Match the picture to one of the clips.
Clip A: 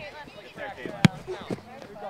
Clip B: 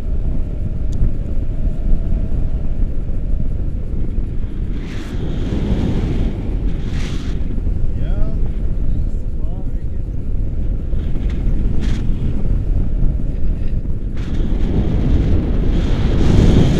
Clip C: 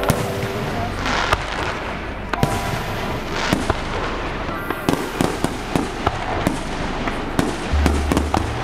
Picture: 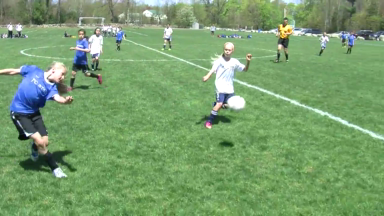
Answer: A